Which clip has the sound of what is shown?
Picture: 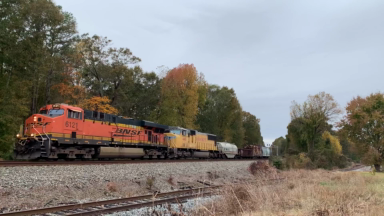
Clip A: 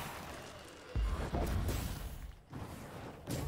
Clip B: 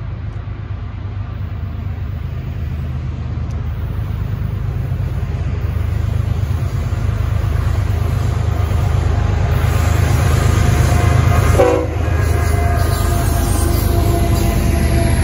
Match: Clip B